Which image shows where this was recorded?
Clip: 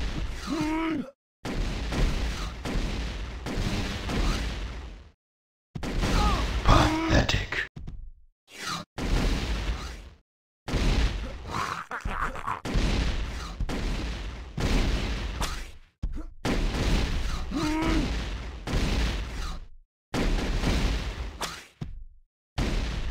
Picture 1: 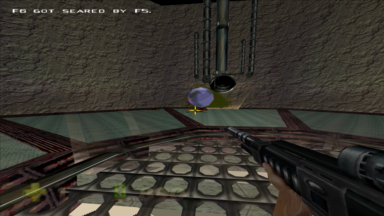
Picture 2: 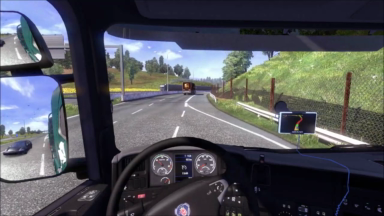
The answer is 1